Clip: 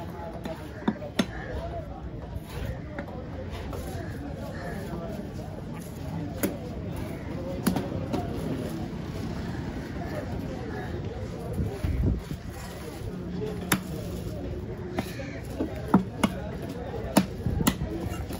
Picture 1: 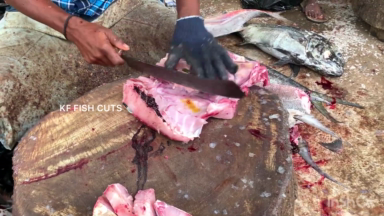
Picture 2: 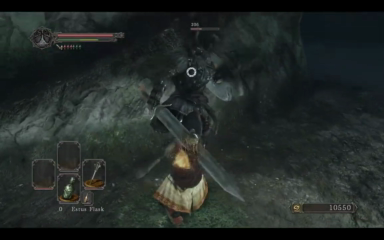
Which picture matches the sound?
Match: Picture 1